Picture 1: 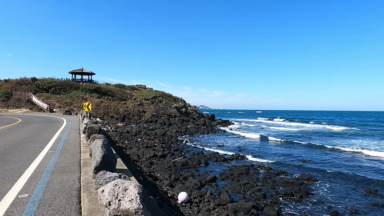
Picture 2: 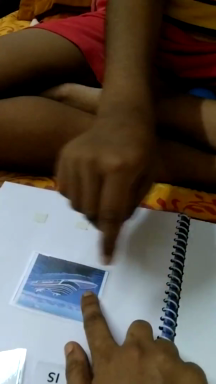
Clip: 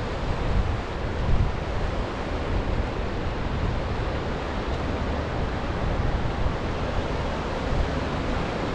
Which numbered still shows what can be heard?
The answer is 1